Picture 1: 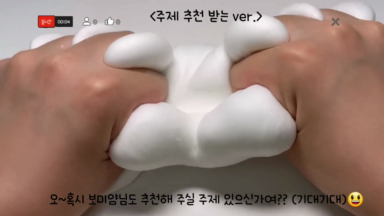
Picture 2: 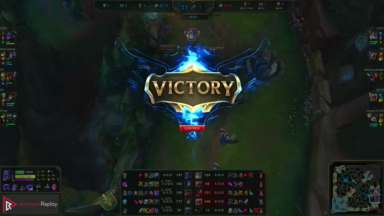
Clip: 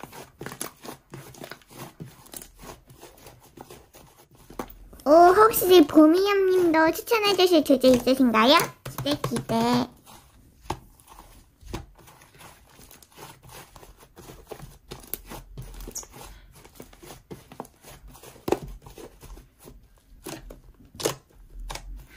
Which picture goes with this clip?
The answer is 1